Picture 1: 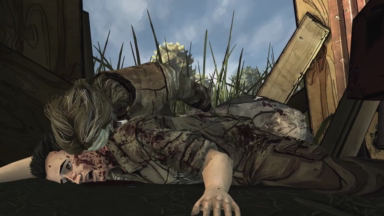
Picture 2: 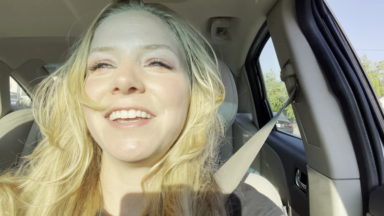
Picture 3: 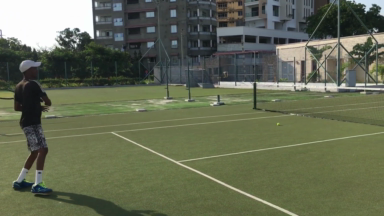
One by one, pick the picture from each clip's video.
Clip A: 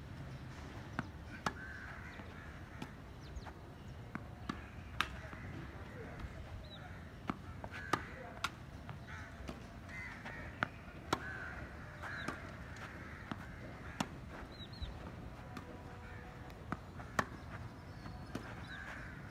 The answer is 3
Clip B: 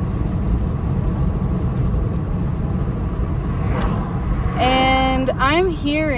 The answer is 2